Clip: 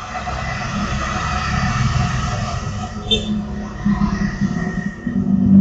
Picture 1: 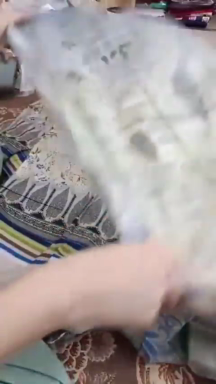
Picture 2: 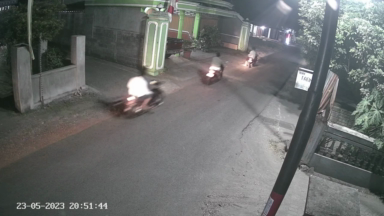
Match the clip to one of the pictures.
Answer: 2